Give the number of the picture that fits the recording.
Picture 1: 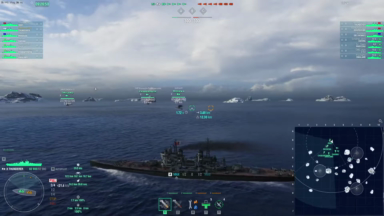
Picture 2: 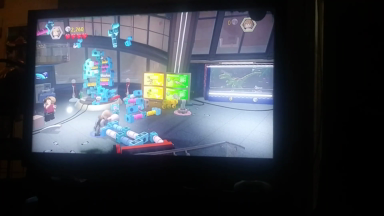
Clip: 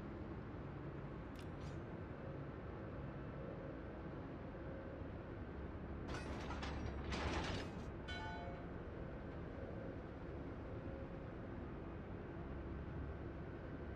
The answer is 1